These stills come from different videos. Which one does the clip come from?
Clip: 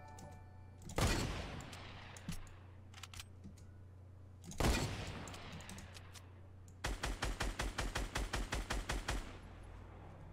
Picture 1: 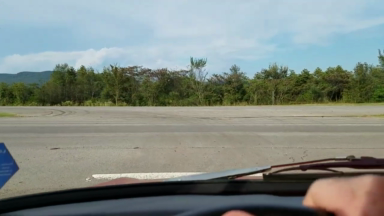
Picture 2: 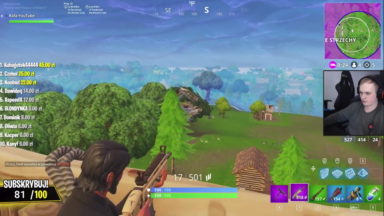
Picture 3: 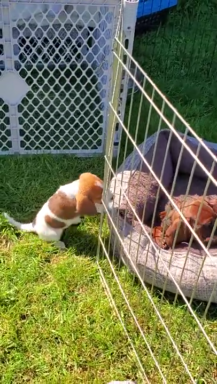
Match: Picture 2